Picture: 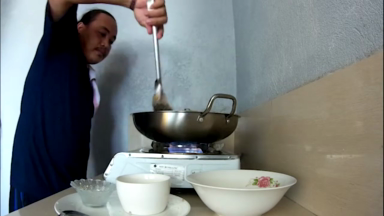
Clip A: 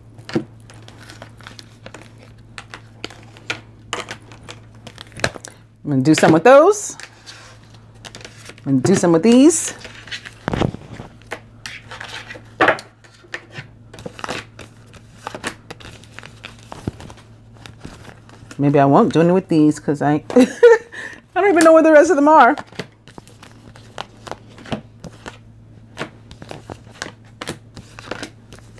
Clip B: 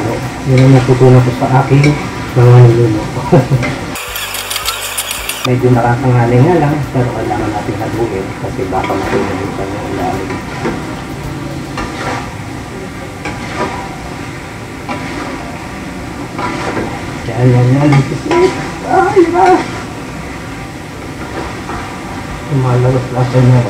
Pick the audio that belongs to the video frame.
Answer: B